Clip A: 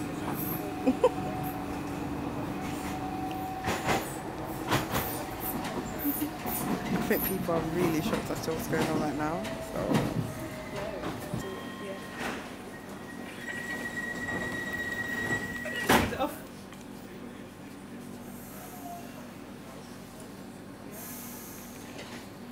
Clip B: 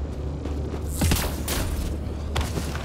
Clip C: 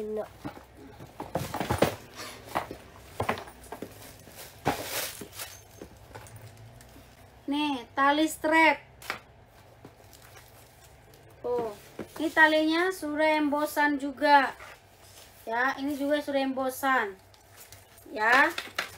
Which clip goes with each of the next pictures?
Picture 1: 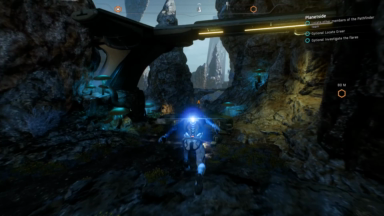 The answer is B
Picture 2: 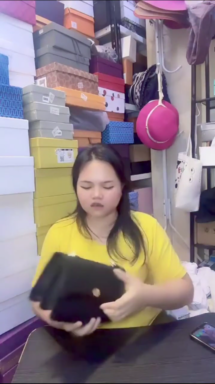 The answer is C